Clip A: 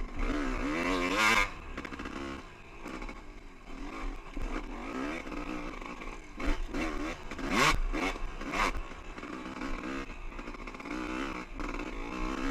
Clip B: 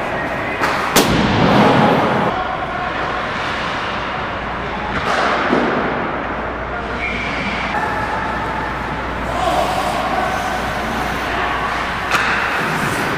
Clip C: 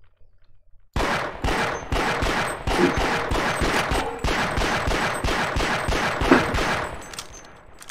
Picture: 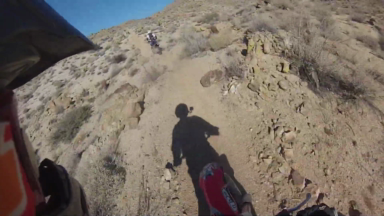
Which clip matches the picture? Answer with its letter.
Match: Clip A